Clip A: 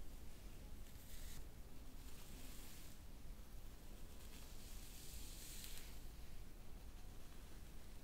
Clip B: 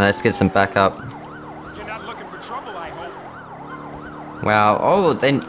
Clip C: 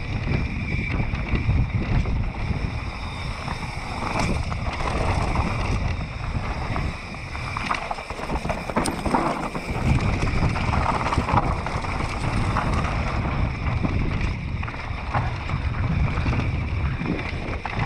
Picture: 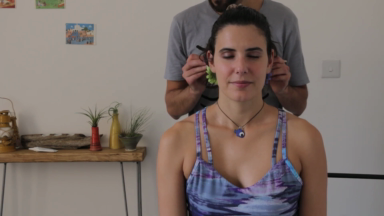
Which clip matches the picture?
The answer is A